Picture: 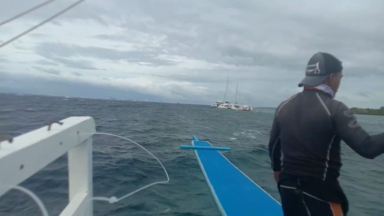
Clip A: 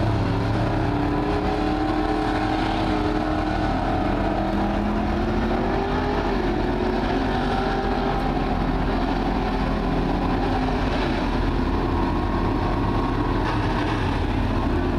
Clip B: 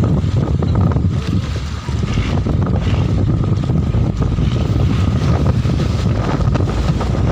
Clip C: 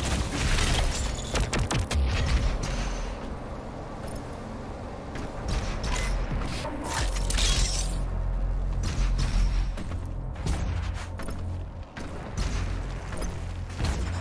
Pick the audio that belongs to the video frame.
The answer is B